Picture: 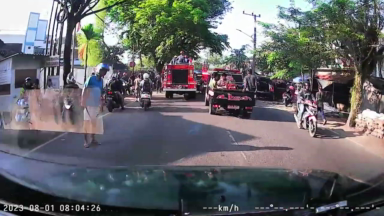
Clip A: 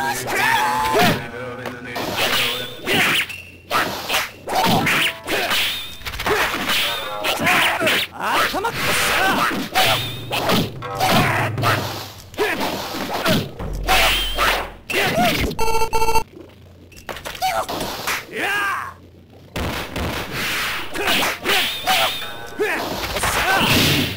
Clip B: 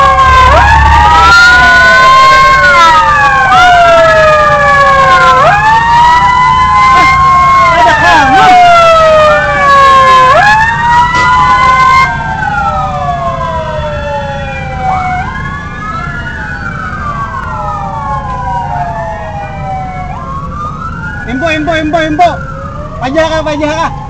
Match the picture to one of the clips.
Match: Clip B